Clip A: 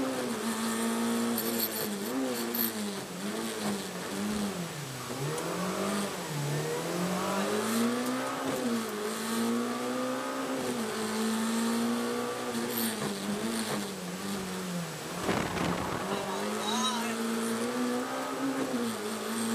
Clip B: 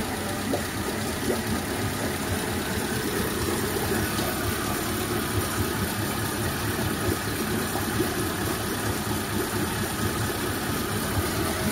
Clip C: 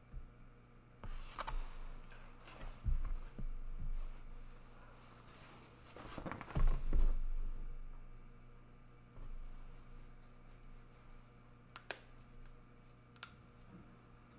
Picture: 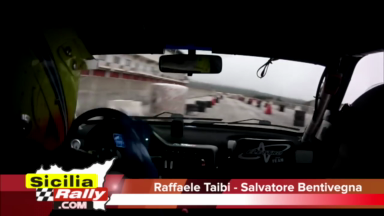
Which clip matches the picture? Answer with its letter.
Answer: A